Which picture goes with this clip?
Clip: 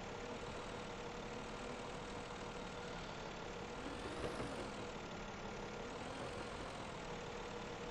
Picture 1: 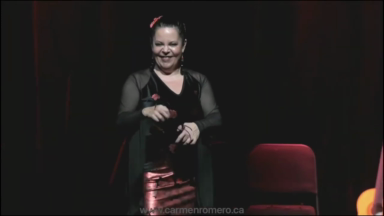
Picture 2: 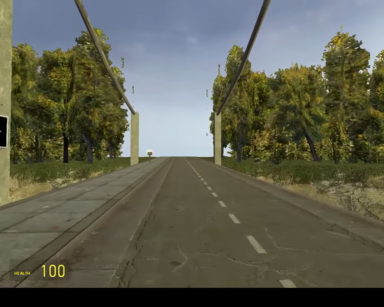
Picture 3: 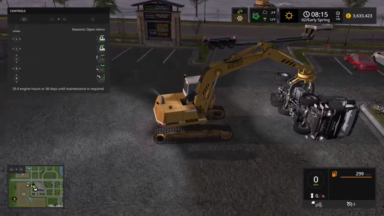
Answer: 3